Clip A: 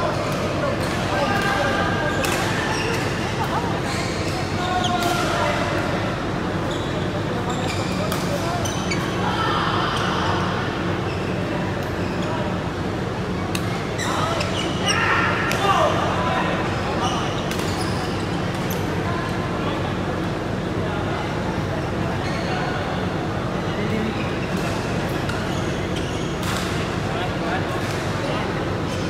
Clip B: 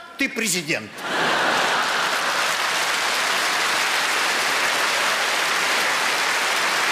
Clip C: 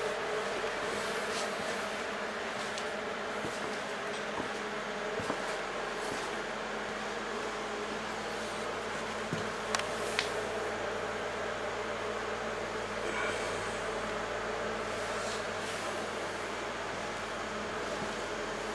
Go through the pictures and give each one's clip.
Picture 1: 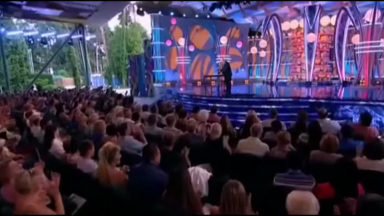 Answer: B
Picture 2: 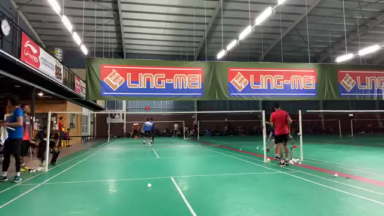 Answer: A